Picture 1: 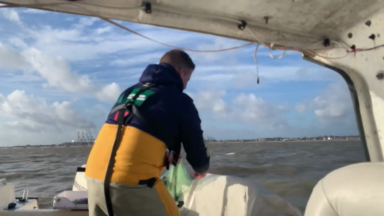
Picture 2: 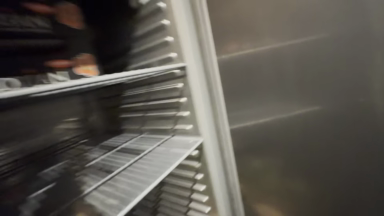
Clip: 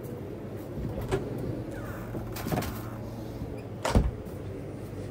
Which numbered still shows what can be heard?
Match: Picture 2